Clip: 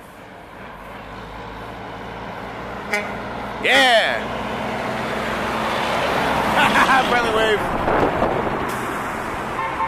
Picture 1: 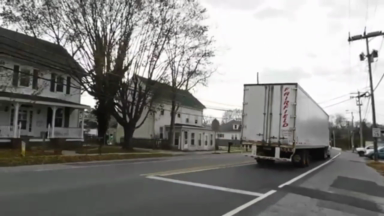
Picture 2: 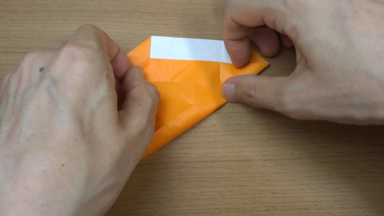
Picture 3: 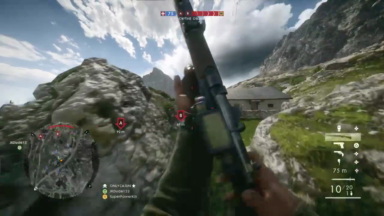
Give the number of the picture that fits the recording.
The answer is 1